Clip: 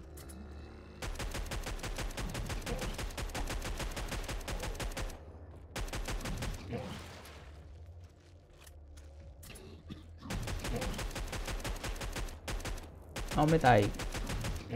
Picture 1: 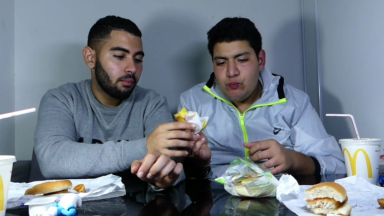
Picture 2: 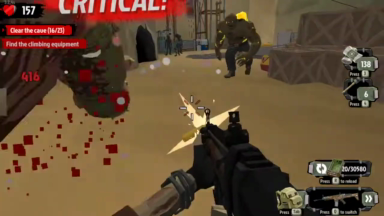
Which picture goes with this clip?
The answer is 2